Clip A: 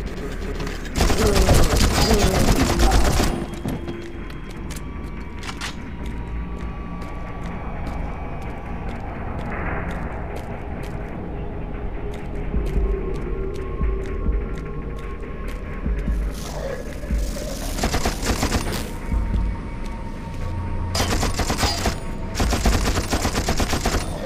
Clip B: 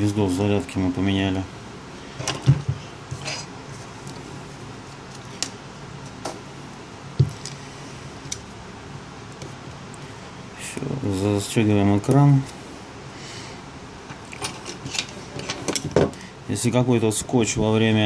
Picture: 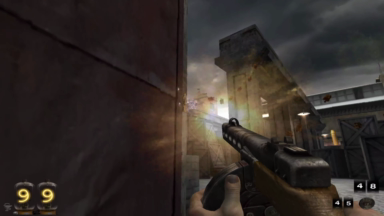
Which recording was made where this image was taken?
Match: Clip A